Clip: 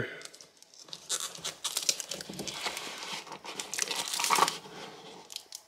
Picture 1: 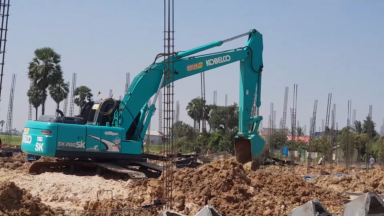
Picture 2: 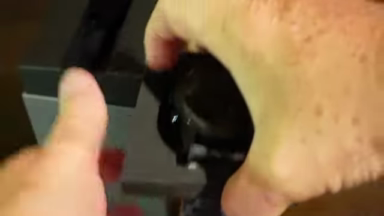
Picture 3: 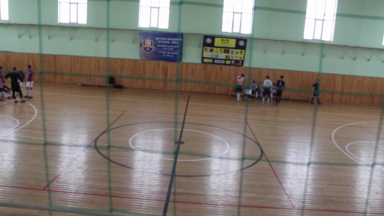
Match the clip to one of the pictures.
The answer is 2